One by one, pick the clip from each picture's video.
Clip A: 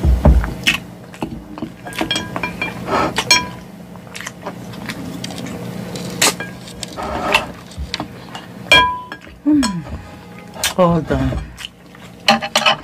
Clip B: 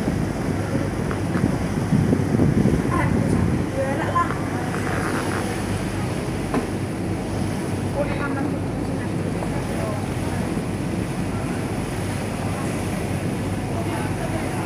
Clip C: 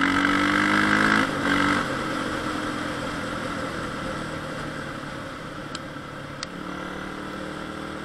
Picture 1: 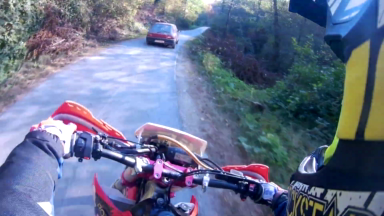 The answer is C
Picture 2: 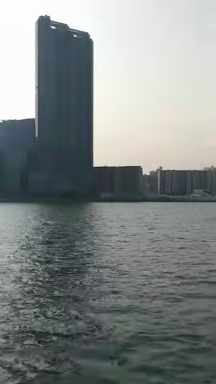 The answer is B